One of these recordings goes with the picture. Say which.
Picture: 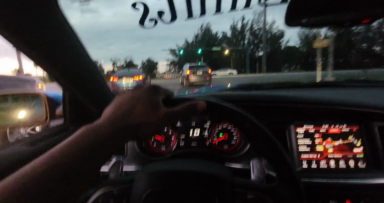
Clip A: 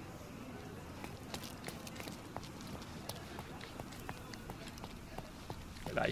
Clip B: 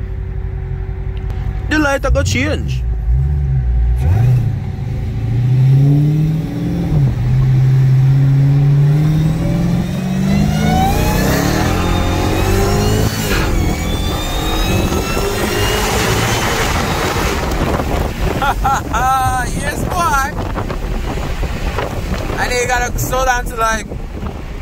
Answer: B